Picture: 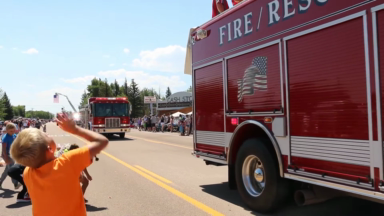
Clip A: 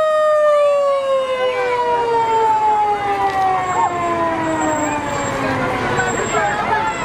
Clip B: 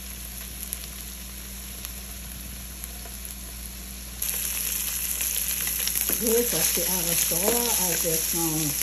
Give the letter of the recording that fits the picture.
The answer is A